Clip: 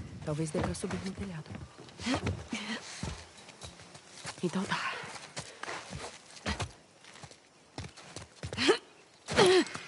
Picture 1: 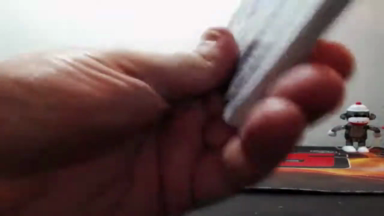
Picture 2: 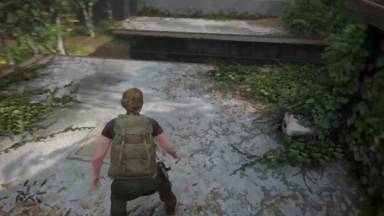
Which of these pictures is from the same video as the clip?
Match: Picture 2